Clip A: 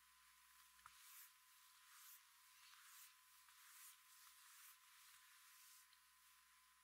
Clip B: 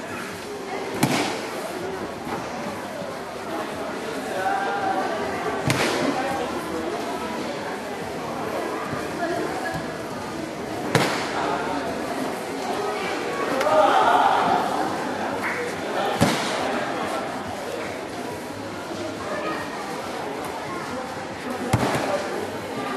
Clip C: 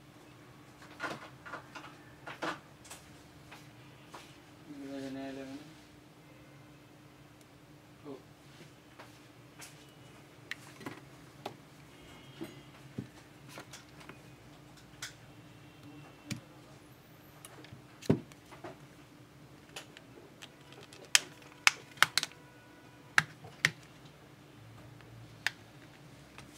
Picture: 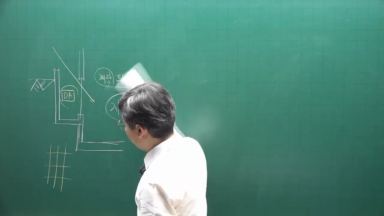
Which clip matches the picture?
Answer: A